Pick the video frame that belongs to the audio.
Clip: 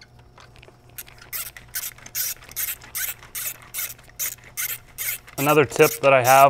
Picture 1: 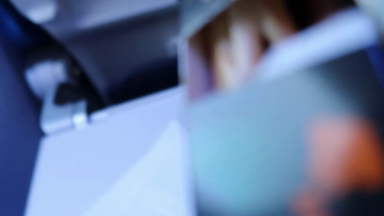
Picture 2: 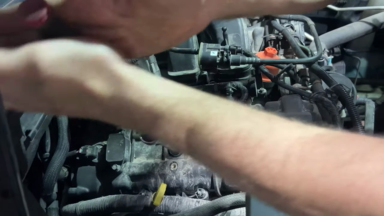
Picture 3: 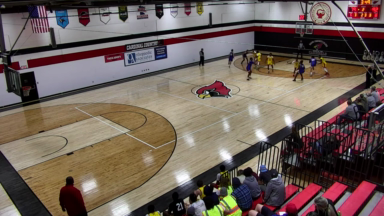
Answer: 2